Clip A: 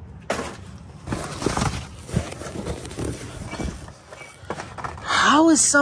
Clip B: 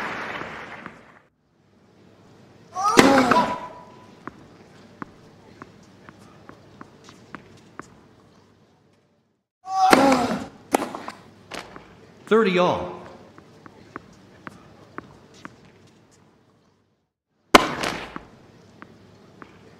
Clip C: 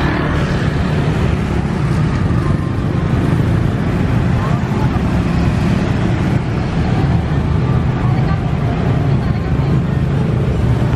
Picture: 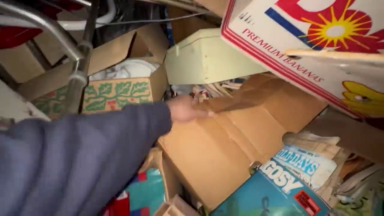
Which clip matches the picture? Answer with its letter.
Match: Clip A